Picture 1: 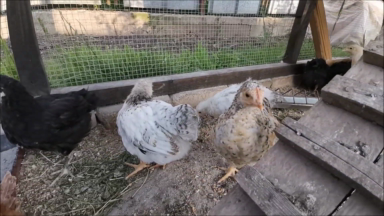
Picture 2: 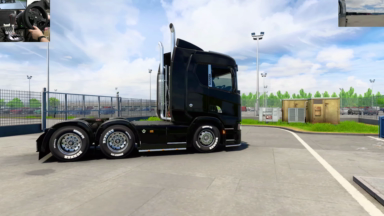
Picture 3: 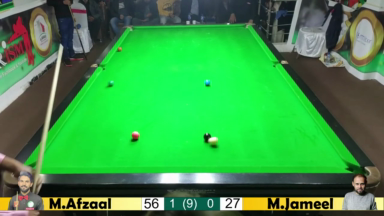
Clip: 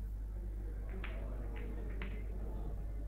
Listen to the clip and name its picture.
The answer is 3